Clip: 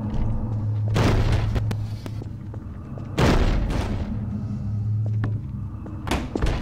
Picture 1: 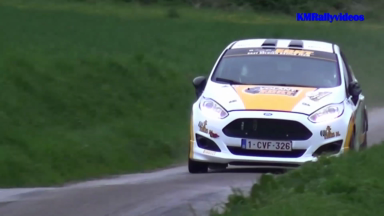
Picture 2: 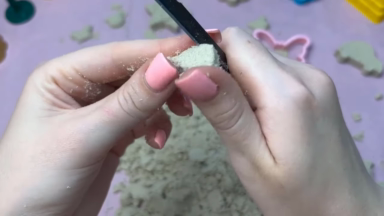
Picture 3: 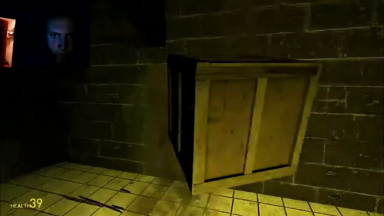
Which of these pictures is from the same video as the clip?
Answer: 3